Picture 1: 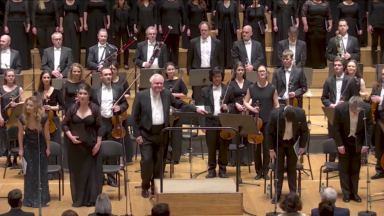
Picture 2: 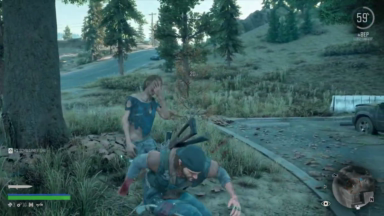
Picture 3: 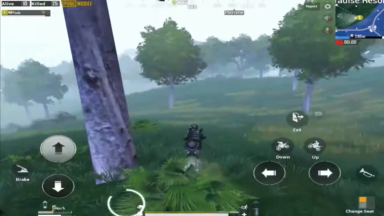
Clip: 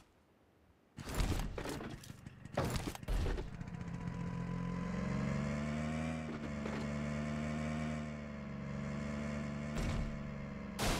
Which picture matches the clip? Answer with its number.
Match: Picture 3